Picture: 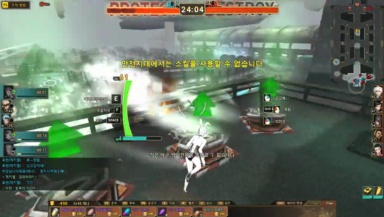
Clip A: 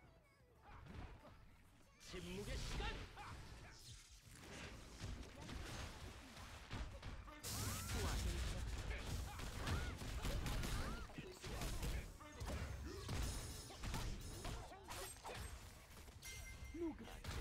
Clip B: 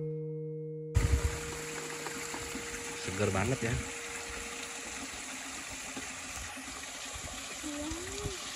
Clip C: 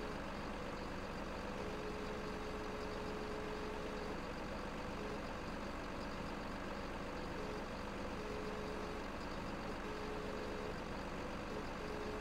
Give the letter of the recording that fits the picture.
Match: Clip A